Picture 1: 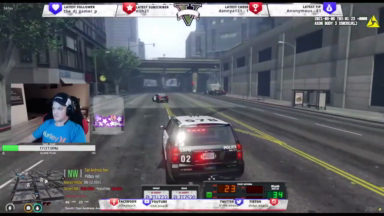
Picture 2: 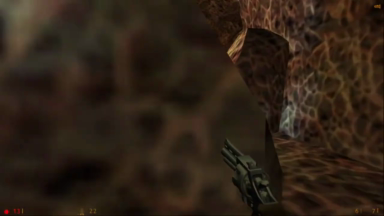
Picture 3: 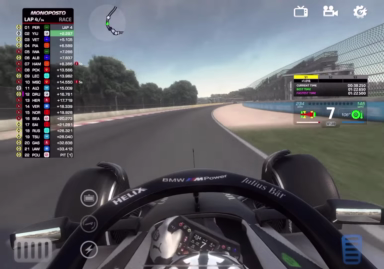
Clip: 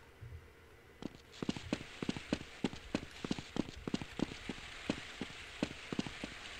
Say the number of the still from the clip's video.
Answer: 2